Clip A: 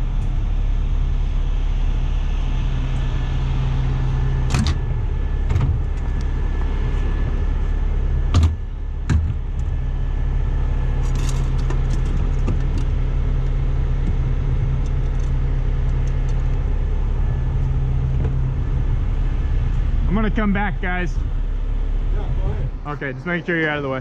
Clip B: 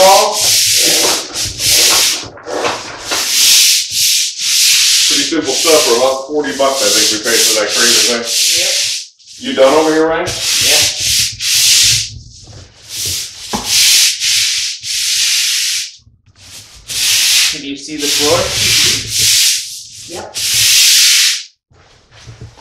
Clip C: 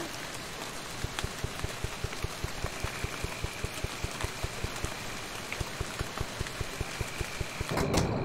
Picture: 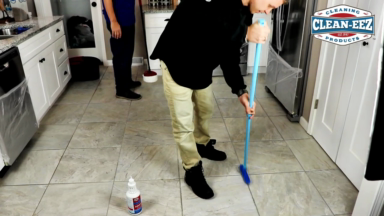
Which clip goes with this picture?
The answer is B